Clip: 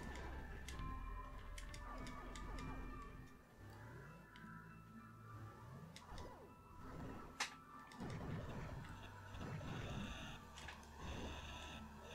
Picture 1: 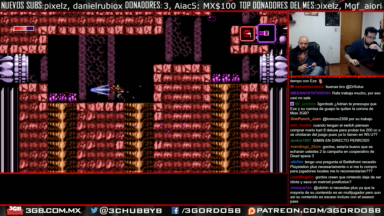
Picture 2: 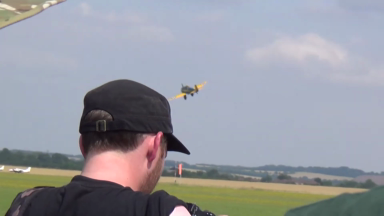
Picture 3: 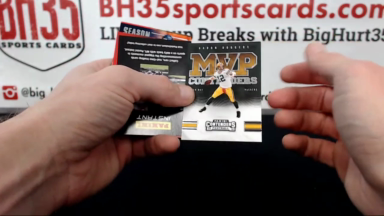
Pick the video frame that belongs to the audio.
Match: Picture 1